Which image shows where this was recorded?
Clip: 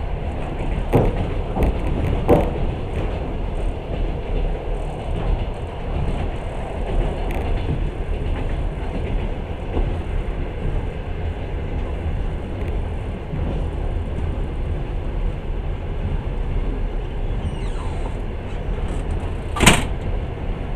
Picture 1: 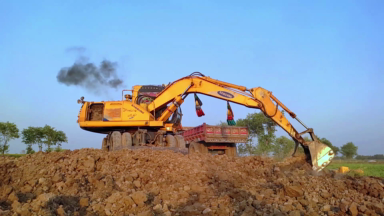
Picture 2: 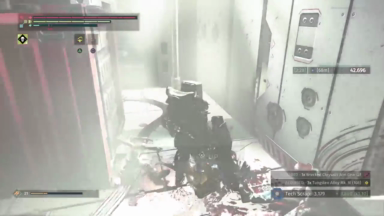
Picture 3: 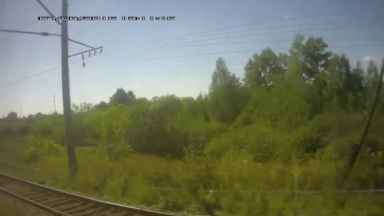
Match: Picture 3